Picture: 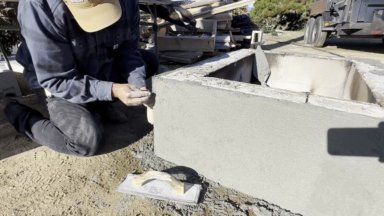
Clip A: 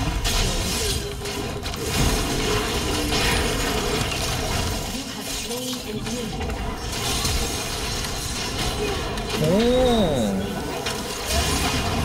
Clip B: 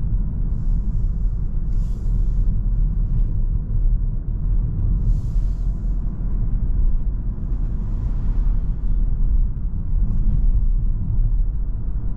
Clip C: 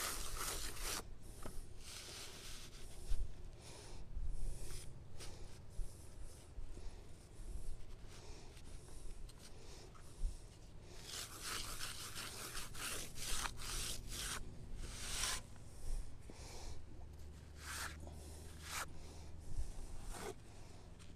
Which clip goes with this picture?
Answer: C